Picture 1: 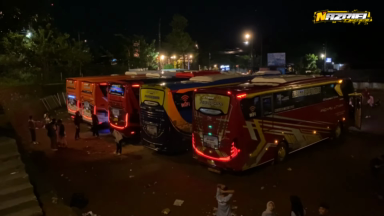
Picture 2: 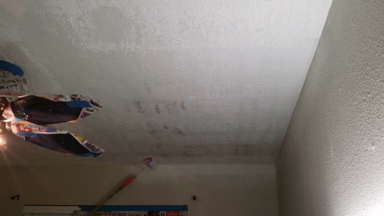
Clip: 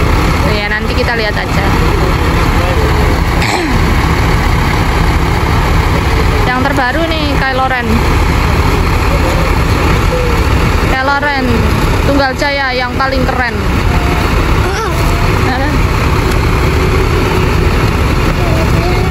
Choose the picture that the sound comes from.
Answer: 1